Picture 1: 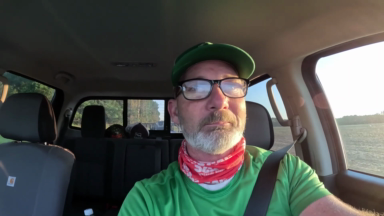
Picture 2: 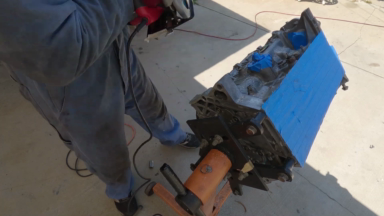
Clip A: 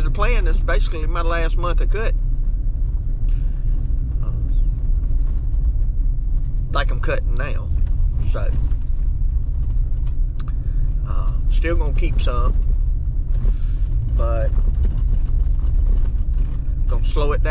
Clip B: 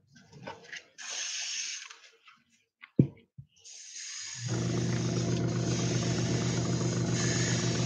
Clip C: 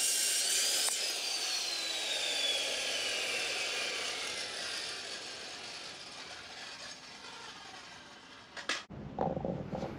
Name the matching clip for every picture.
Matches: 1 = A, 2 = C